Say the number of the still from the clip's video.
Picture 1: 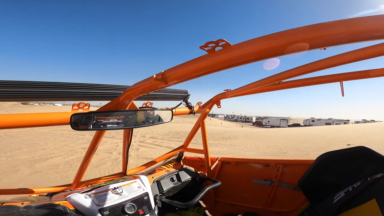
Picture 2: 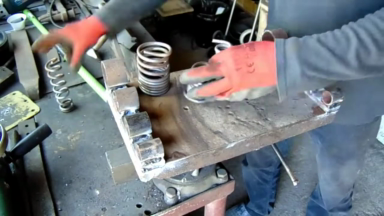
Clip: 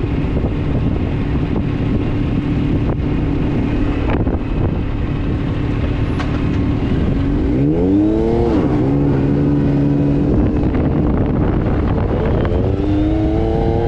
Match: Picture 1